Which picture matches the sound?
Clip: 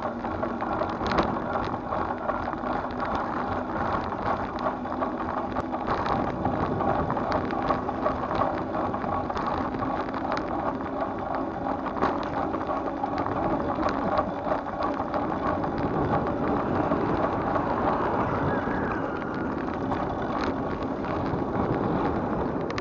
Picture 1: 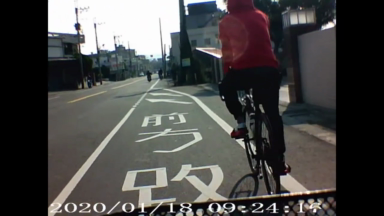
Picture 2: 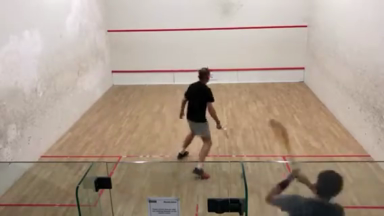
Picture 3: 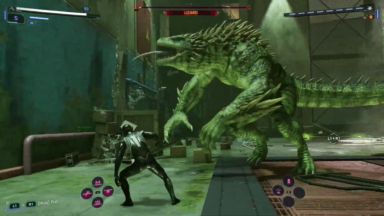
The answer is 1